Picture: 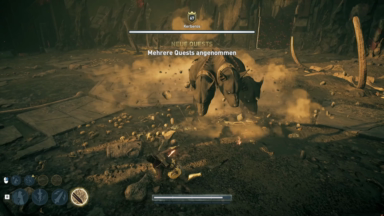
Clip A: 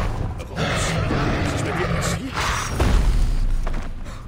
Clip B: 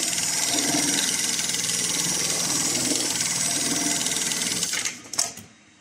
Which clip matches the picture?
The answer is A